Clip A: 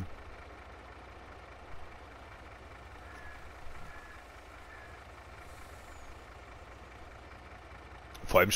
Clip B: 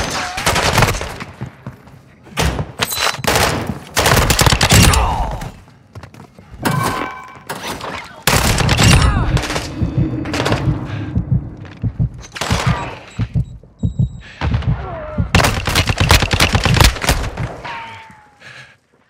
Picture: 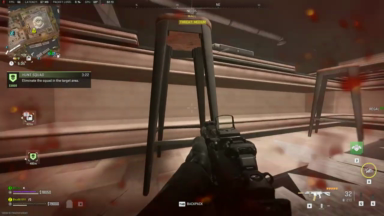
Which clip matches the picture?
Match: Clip B